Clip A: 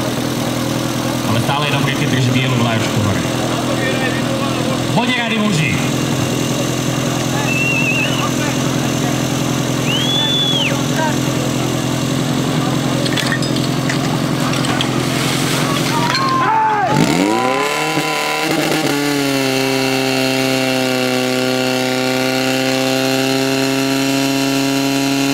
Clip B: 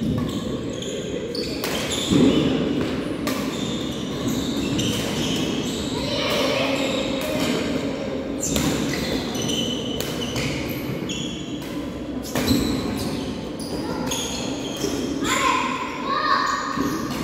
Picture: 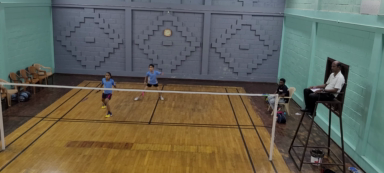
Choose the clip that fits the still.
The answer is B